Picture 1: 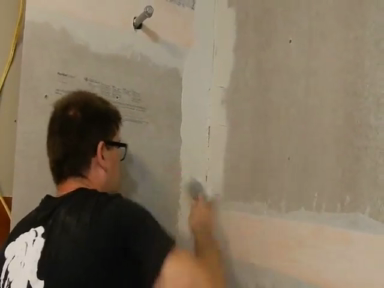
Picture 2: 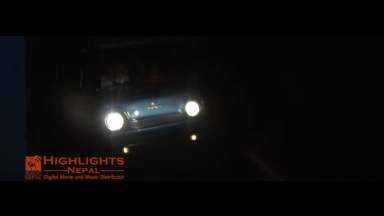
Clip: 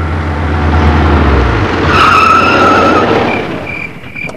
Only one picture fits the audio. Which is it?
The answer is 2